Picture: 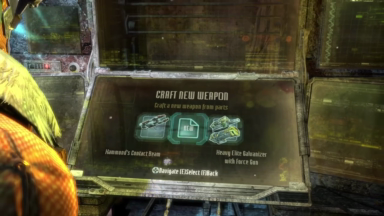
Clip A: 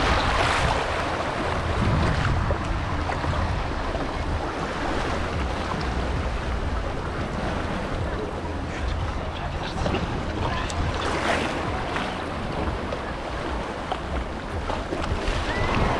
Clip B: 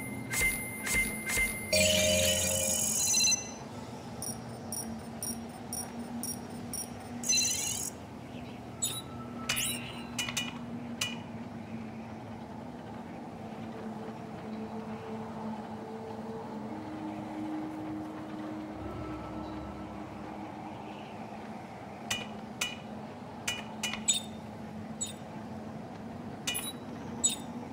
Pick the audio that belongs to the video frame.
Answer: B